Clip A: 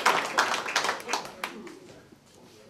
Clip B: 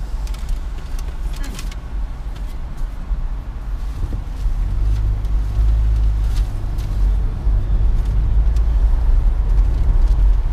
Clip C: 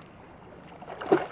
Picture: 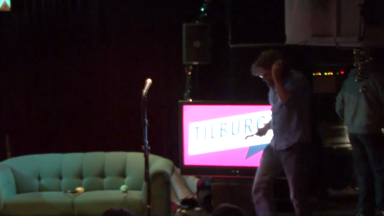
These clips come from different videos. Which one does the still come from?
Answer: A